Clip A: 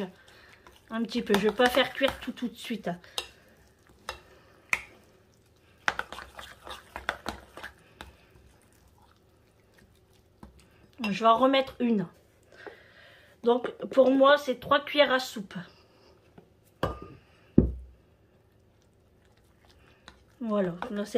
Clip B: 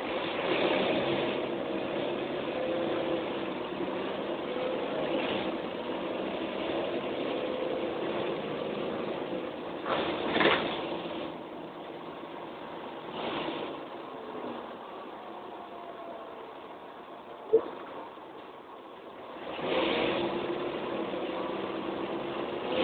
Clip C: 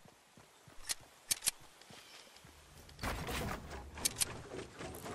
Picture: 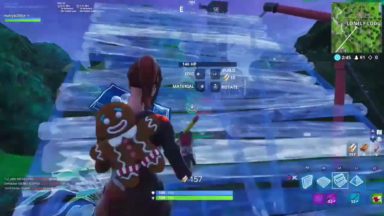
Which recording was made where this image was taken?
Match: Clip C